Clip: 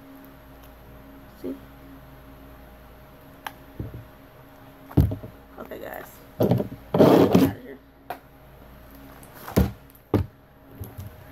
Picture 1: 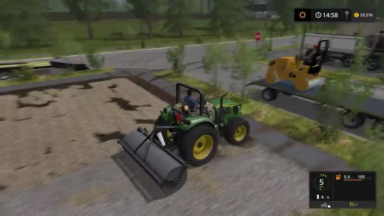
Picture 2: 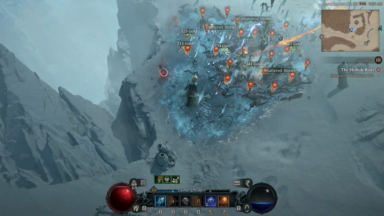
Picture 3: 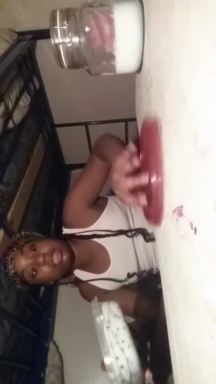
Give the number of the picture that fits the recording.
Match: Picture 3